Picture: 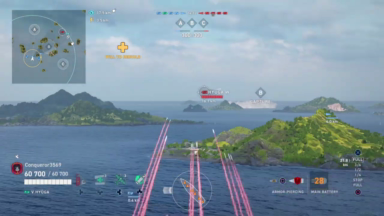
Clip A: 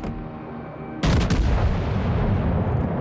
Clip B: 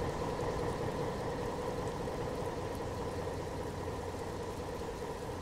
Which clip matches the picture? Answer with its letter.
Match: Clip A